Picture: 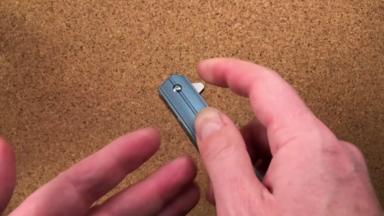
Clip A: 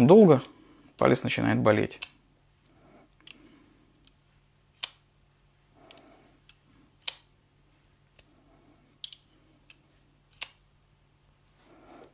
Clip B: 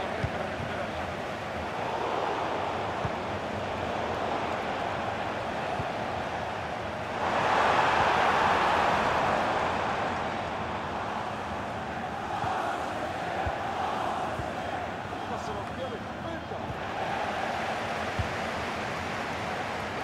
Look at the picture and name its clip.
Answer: A